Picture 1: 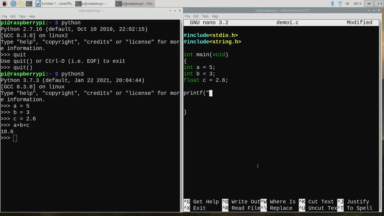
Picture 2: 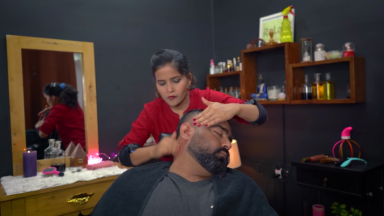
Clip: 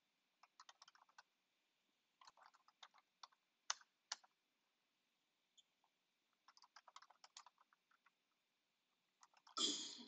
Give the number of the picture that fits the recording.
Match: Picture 1